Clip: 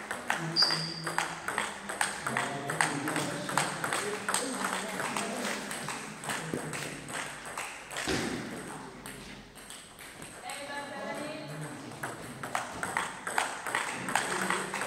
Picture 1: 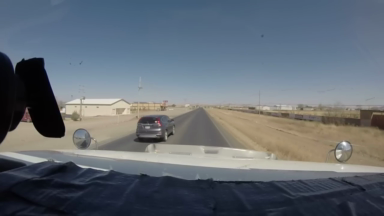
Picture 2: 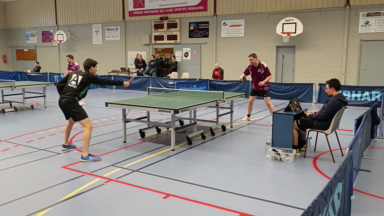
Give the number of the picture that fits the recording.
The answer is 2